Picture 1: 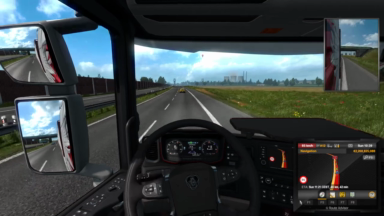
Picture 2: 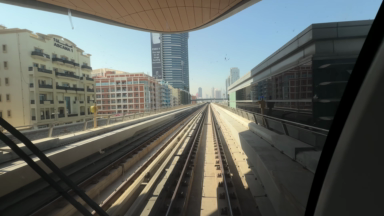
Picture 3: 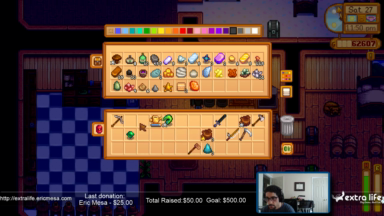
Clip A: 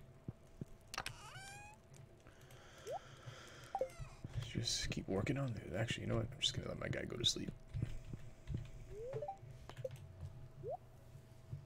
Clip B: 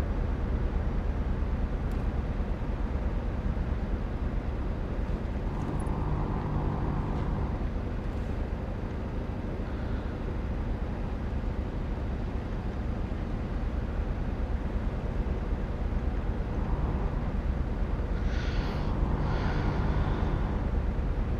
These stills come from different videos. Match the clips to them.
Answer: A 3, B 1